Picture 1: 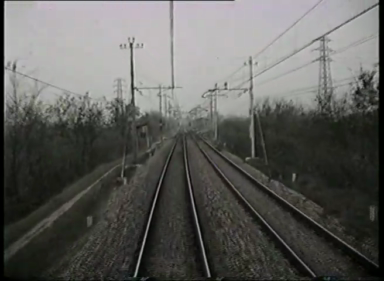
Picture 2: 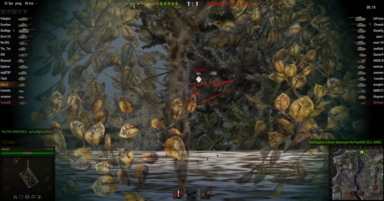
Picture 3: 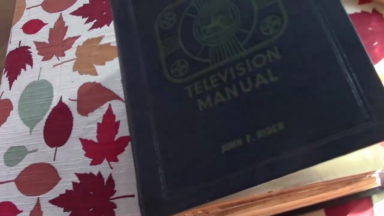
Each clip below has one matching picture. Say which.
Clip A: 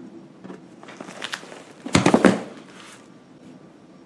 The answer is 3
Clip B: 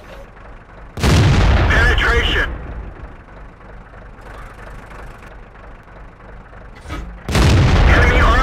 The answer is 2